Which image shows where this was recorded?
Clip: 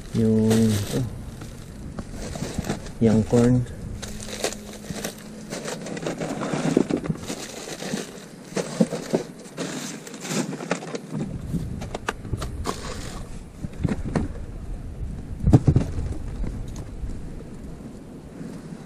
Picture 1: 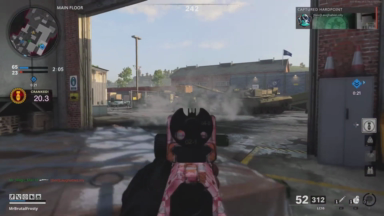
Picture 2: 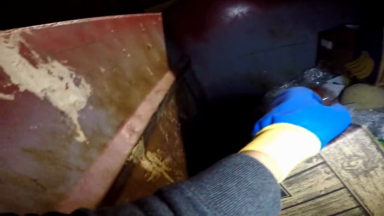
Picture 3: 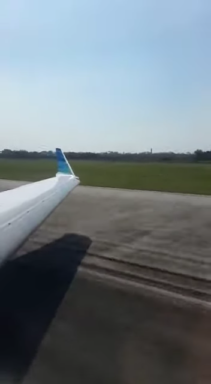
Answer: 2